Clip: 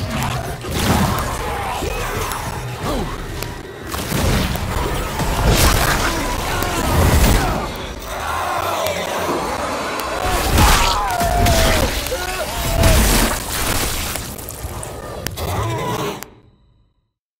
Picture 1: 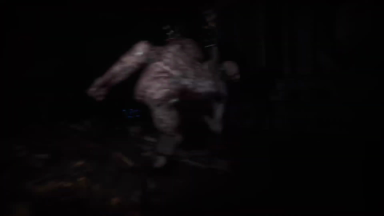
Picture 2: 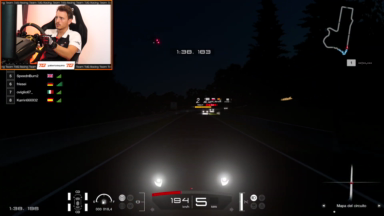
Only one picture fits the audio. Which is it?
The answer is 1